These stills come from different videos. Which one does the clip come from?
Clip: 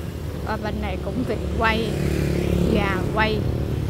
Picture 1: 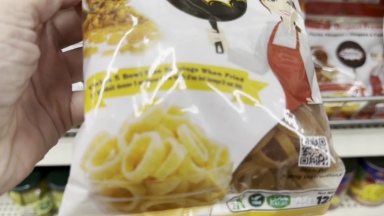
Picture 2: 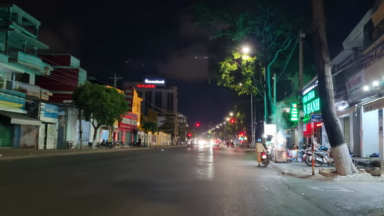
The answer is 2